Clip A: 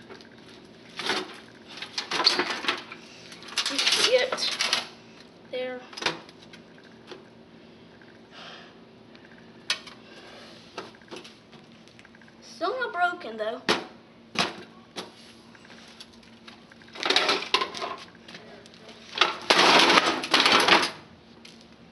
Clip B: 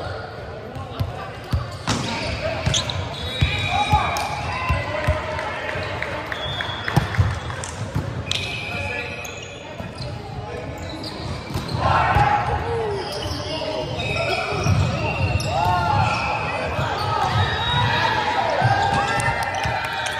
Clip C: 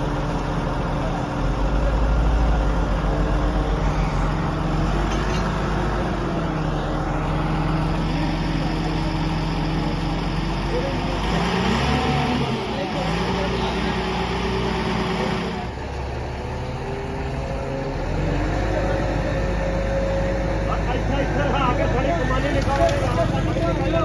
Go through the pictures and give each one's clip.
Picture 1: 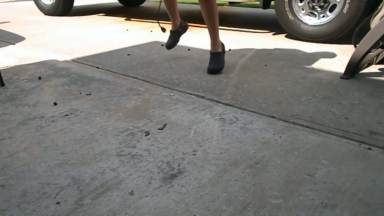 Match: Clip A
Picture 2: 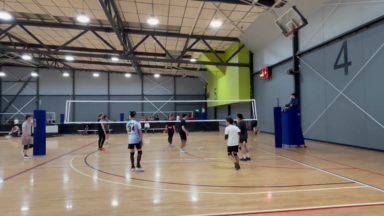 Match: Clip B